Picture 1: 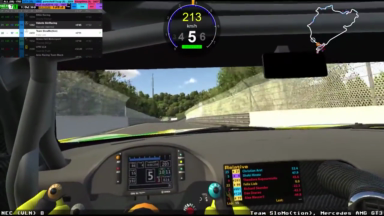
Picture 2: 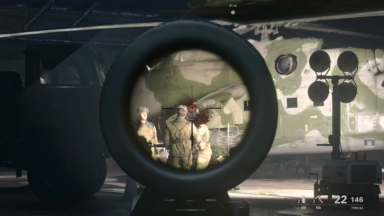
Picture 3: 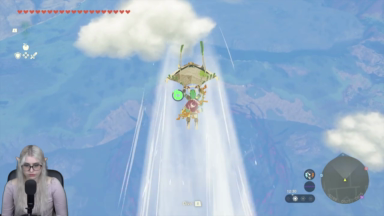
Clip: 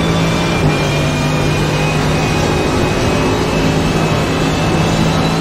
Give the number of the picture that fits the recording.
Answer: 1